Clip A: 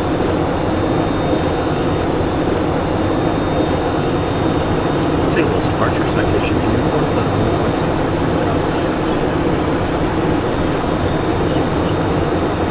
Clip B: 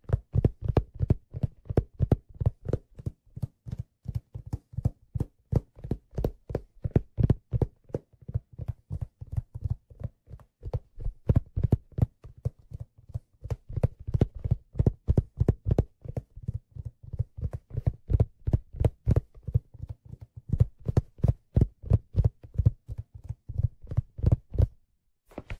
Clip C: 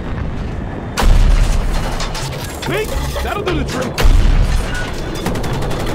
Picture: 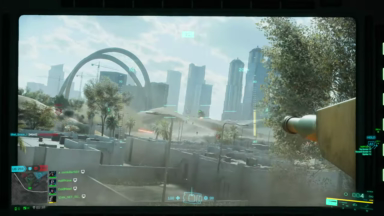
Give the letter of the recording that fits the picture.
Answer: C